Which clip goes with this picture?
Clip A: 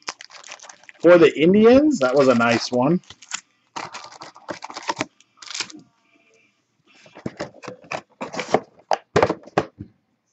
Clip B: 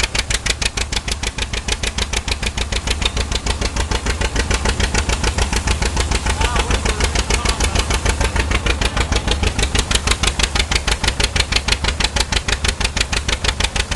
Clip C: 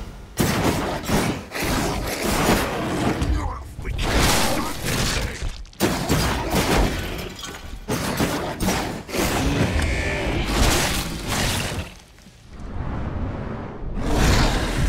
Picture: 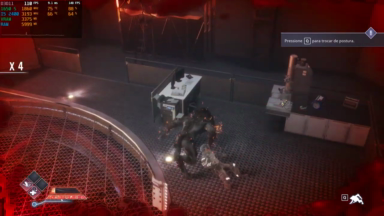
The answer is C